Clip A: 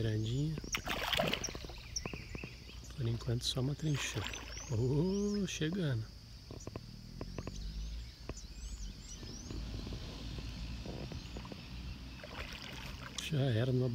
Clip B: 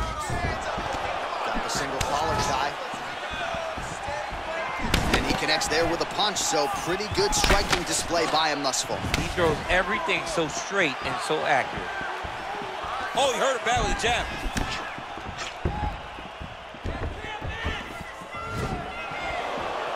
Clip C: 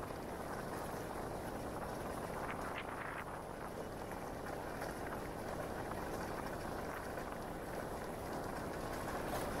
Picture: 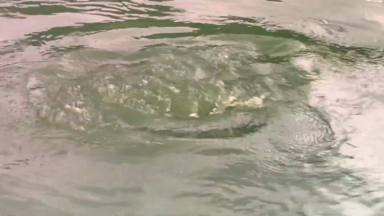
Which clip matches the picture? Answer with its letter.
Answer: A